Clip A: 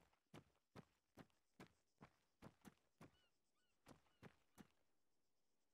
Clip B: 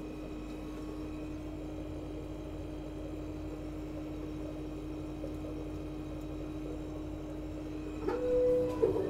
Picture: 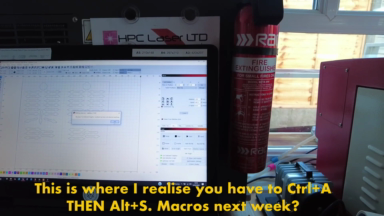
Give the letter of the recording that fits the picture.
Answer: B